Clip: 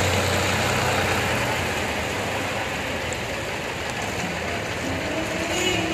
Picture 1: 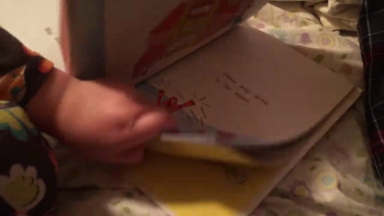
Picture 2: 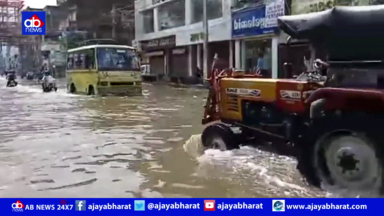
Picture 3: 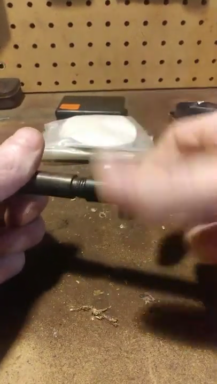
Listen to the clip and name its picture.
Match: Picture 2